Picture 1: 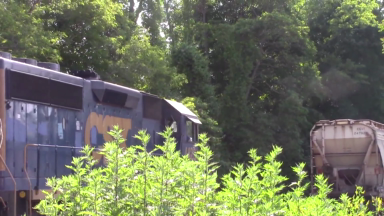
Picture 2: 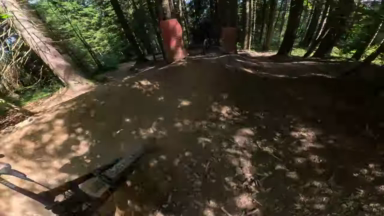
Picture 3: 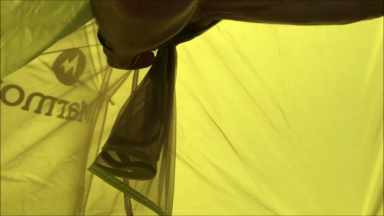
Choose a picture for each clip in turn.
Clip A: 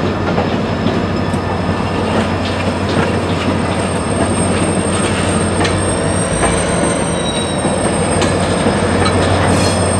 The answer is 1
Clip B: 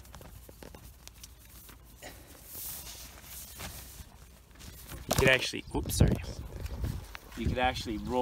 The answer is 3